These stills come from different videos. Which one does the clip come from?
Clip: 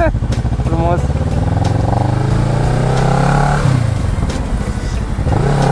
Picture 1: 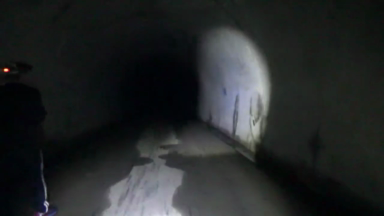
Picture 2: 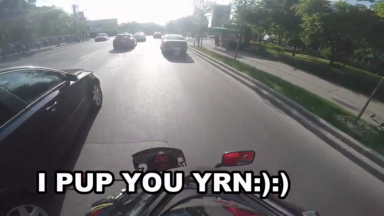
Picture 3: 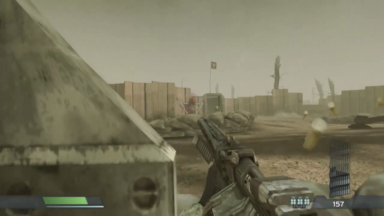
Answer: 2